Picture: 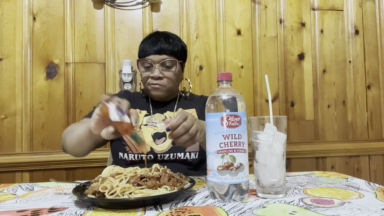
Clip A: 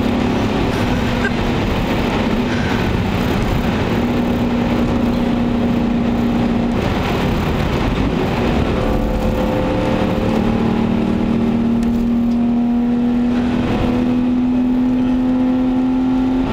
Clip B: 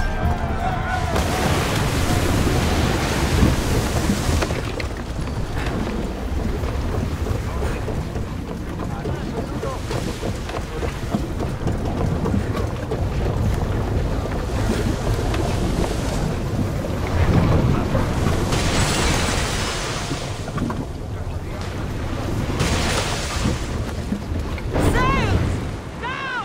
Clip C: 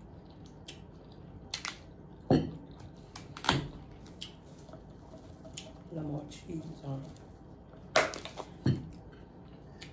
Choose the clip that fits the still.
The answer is C